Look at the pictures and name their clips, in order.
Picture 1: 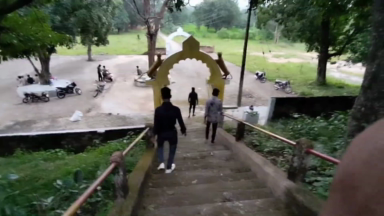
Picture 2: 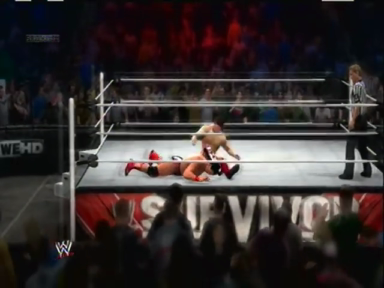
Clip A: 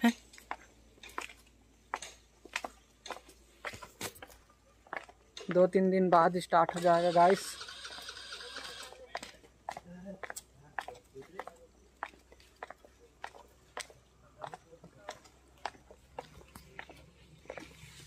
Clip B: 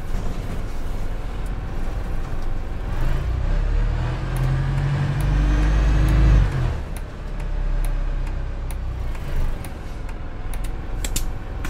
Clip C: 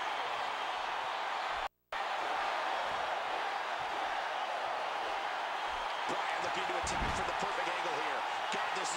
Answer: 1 A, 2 C